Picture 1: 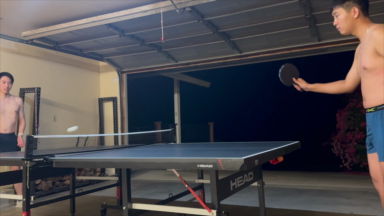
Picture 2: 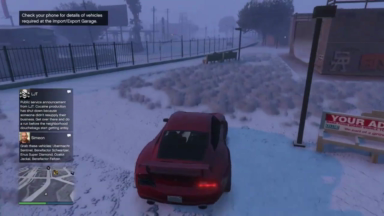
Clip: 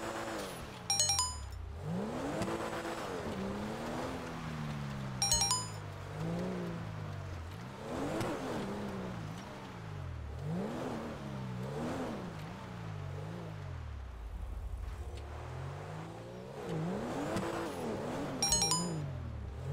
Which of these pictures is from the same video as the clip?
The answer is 2